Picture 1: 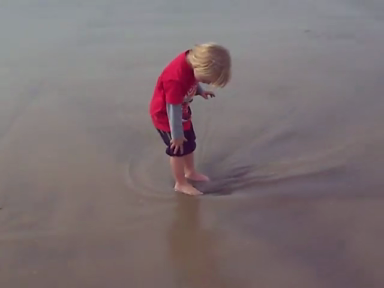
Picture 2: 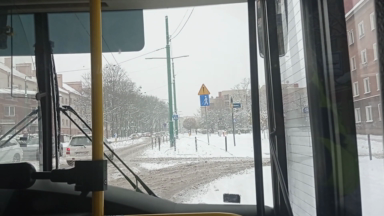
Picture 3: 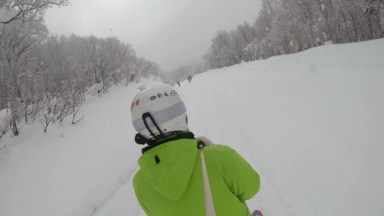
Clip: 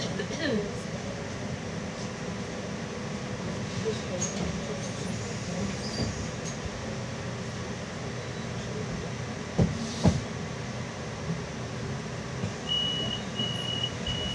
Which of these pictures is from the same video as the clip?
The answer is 2